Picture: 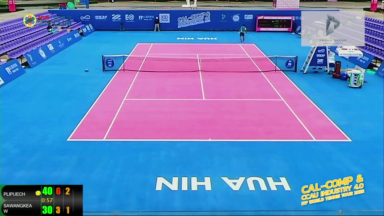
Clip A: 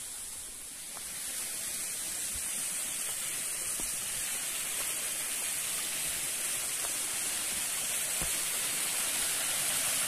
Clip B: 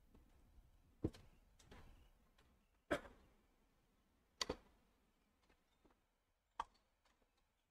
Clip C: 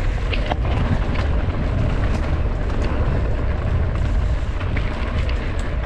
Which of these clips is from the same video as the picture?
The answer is B